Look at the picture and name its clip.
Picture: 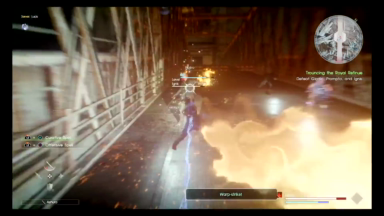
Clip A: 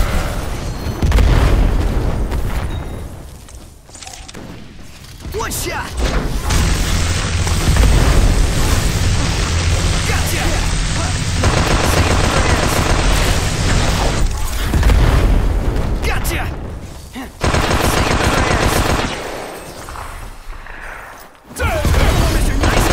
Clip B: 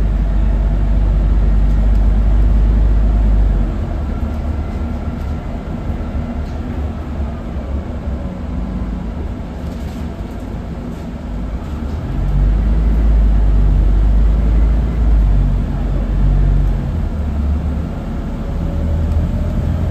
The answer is A